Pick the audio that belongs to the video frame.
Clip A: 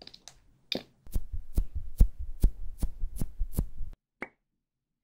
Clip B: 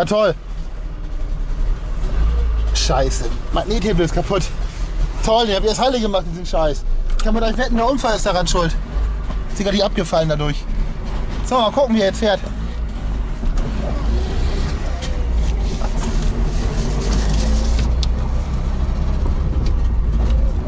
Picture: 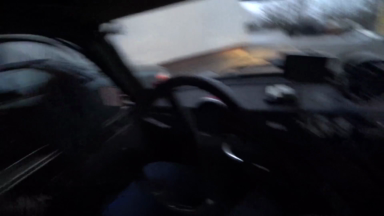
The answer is B